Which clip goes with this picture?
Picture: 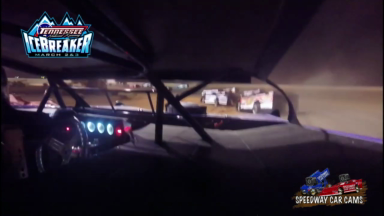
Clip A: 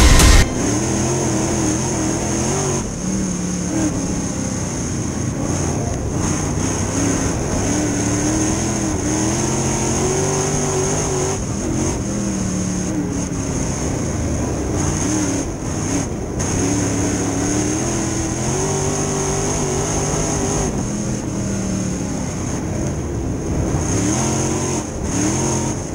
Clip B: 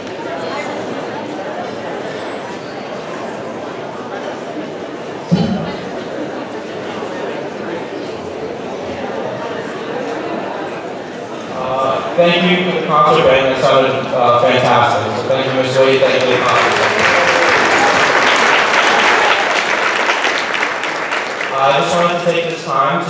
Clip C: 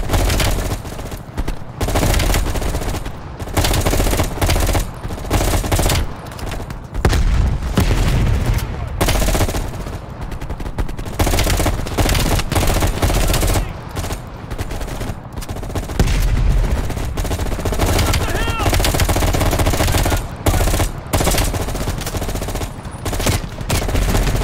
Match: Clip A